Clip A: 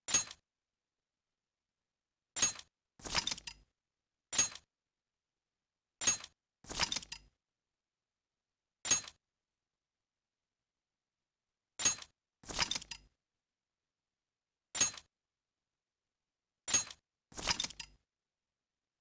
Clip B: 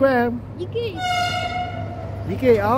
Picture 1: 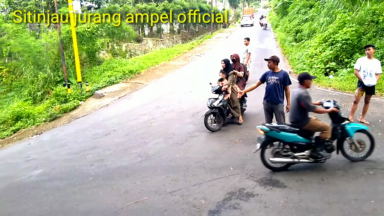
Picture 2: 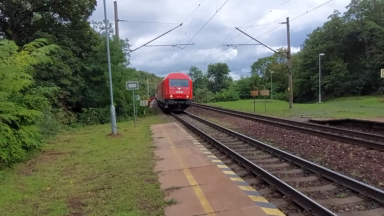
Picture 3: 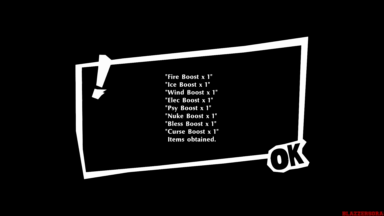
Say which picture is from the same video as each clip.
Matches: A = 3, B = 2